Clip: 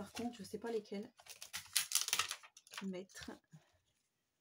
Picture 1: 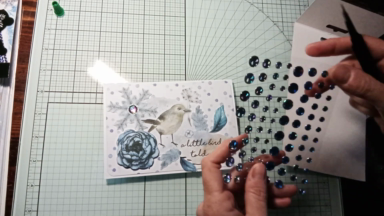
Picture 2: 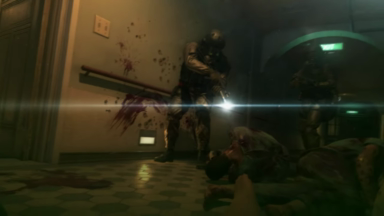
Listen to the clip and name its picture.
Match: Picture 1